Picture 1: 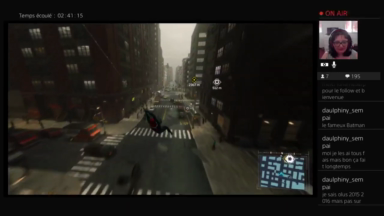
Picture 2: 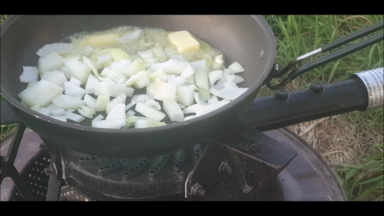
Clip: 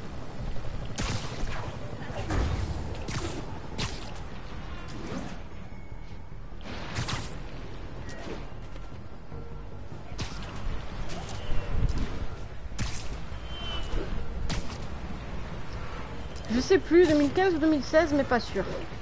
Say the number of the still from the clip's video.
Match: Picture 1